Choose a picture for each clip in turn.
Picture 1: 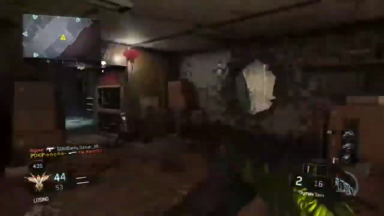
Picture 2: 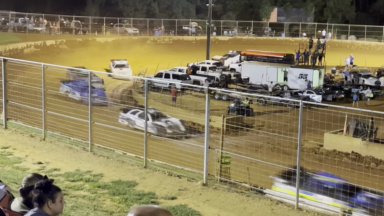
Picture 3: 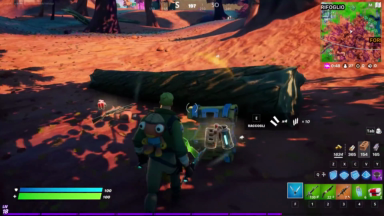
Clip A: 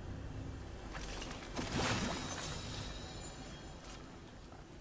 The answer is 3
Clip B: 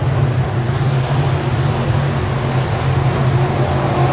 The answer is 2